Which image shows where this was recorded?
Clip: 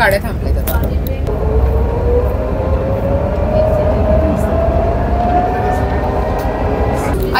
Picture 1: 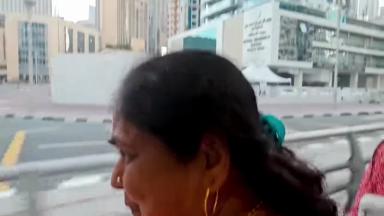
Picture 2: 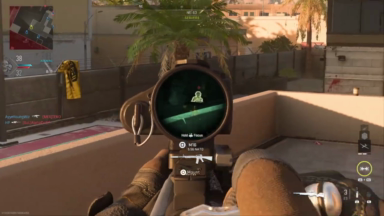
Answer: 1